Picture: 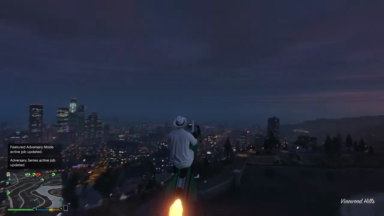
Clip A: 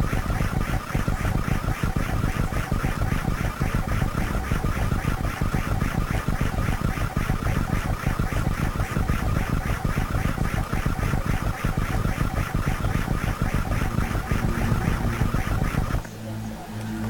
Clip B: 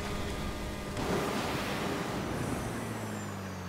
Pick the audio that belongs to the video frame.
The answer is B